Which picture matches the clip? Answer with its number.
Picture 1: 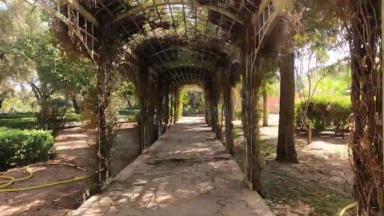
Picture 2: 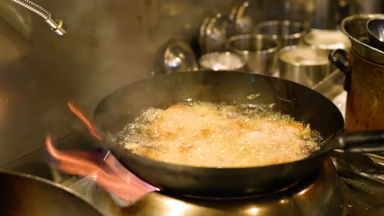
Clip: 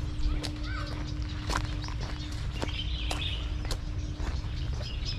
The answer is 1